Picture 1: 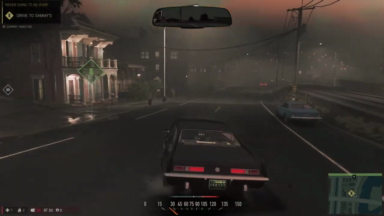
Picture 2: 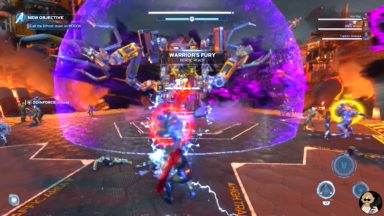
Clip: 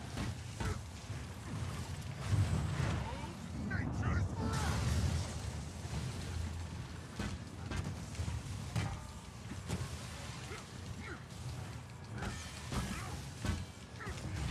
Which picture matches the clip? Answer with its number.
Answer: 2